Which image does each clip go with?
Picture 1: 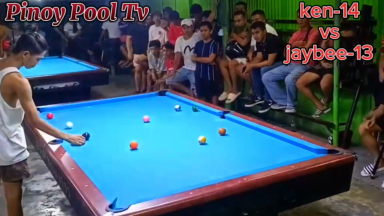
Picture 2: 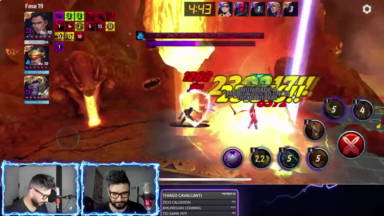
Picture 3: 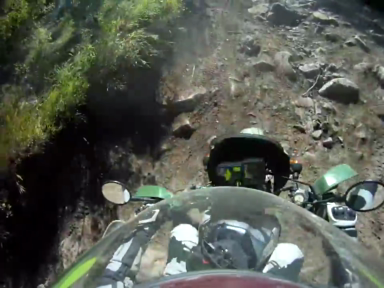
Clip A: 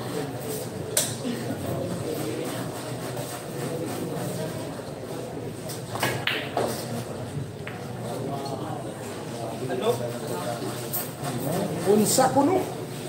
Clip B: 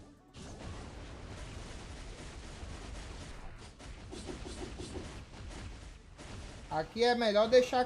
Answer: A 1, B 2